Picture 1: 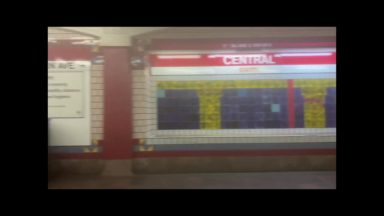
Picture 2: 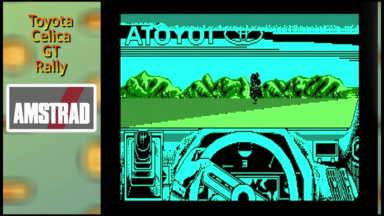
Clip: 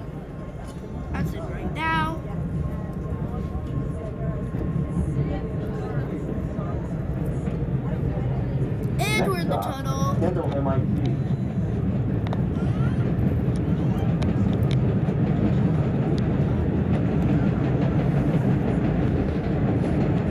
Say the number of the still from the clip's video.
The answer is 1